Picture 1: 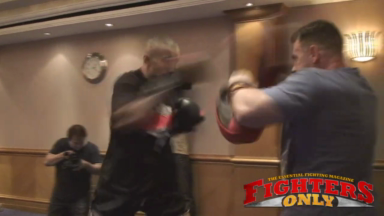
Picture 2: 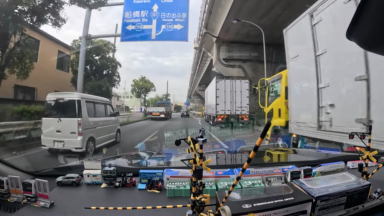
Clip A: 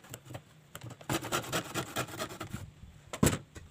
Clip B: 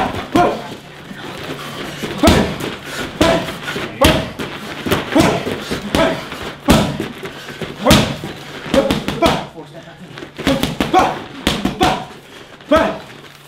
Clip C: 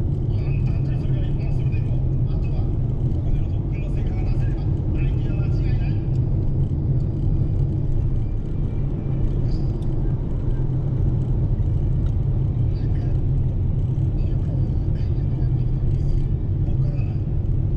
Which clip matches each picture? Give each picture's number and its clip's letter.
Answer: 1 B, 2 C